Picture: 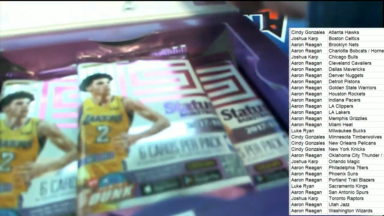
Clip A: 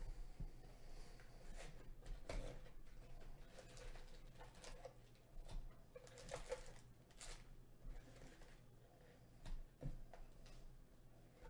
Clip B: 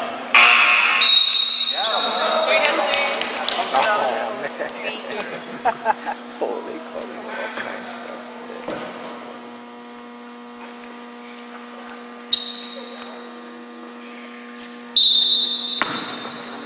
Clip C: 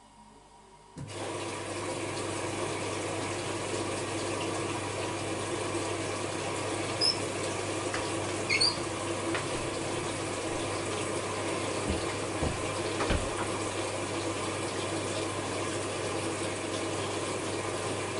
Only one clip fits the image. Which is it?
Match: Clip A